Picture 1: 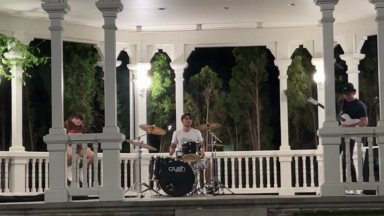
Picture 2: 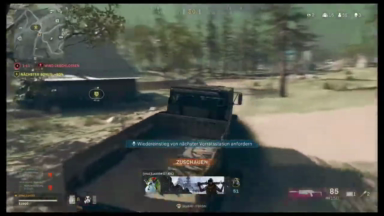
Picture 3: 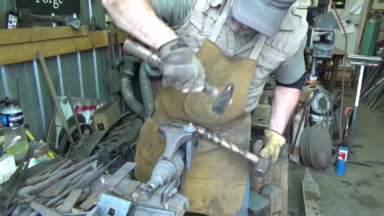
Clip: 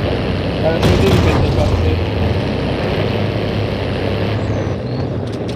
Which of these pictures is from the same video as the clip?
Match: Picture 2